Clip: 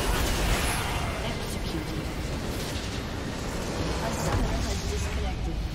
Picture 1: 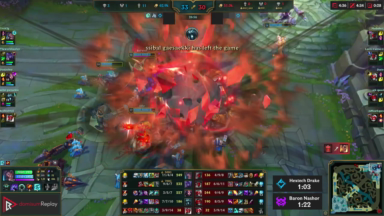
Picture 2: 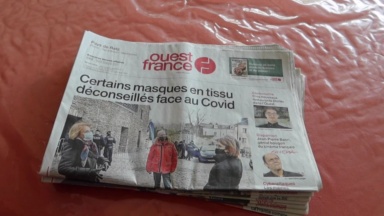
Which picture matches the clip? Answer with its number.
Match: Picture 1